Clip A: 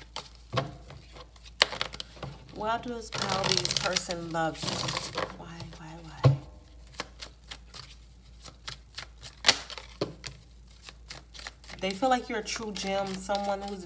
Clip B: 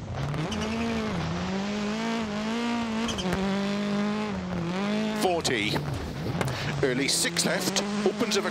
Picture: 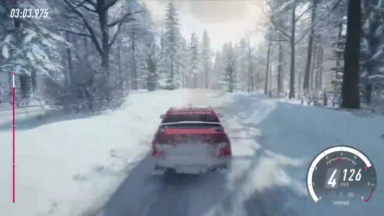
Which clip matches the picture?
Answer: B